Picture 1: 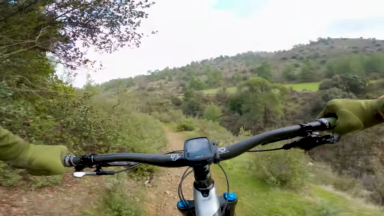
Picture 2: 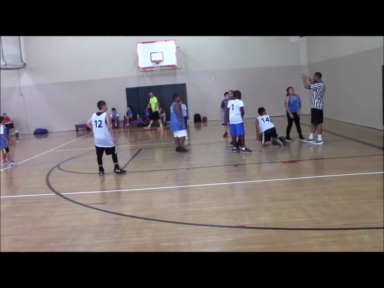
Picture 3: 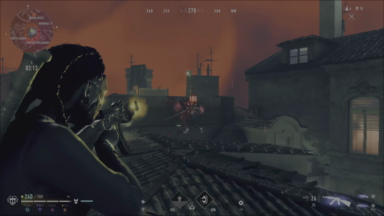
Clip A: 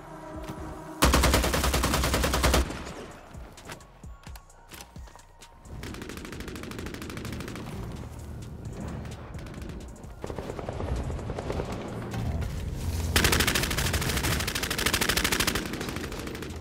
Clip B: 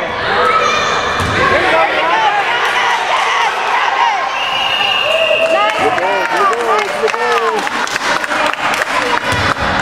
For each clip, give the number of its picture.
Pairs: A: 3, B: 2